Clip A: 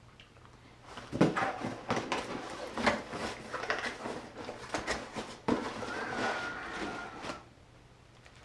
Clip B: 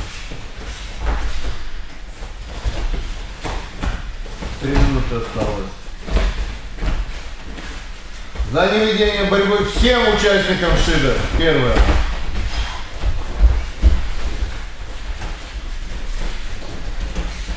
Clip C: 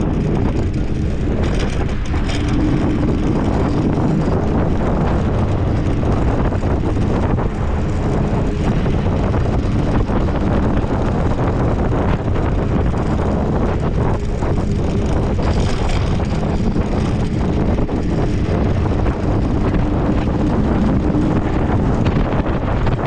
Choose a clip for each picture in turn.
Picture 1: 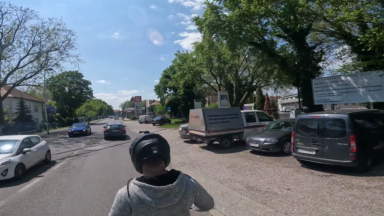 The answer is C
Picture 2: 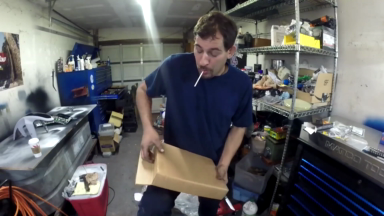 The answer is A